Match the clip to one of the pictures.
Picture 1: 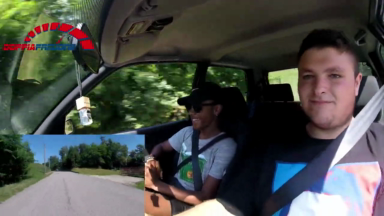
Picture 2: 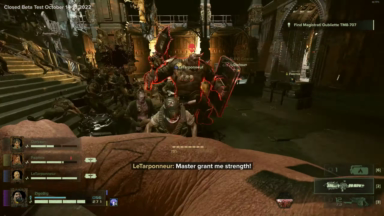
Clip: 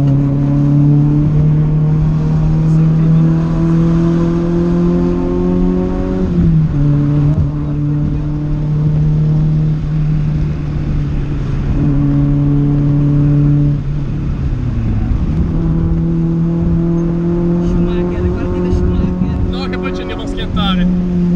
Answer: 1